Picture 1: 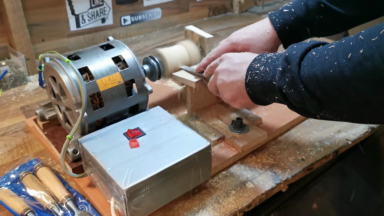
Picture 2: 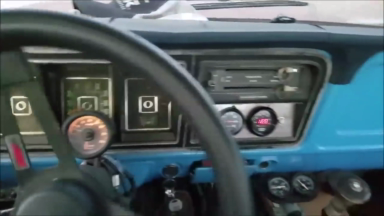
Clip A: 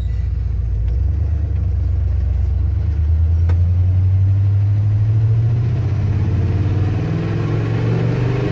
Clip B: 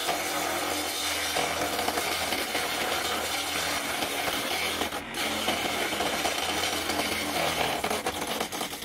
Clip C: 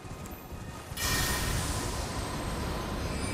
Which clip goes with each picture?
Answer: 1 B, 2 A